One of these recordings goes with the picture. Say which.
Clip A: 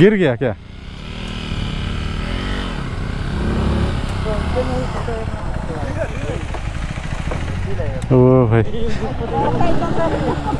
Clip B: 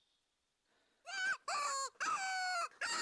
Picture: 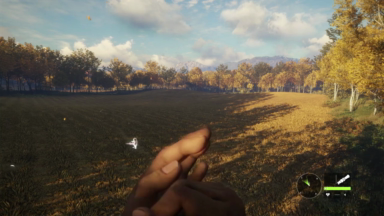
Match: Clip B